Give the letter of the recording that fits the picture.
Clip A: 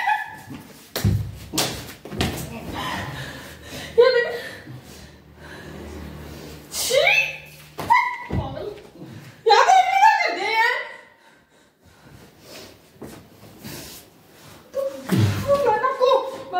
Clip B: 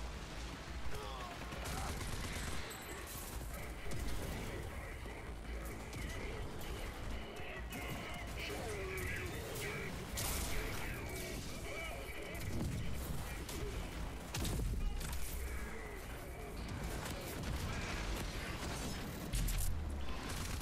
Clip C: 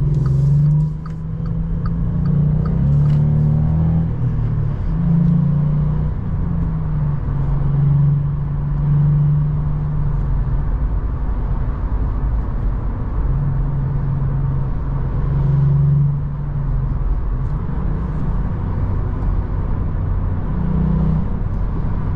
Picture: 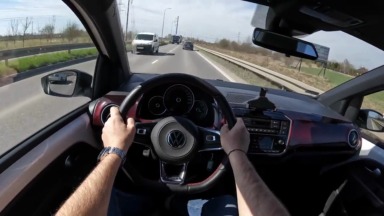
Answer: C